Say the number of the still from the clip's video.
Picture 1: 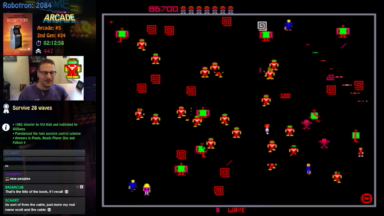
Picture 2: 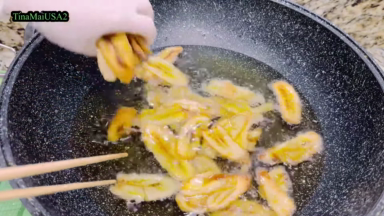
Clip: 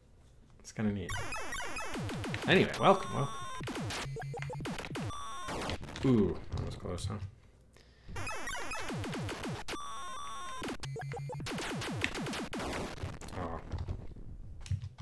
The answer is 1